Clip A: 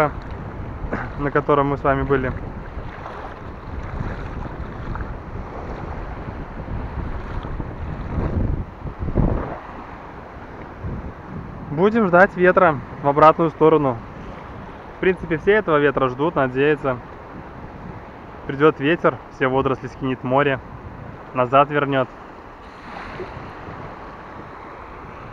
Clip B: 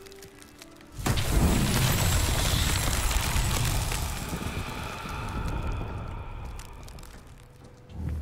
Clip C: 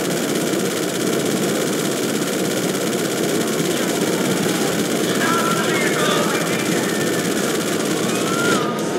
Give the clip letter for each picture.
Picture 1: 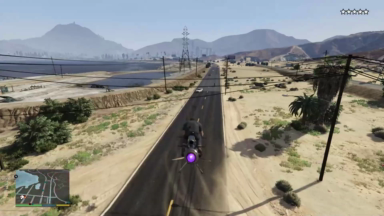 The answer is C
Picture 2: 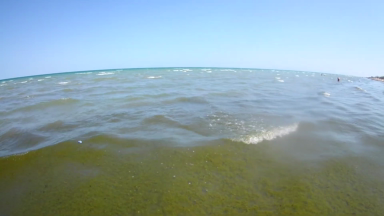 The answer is A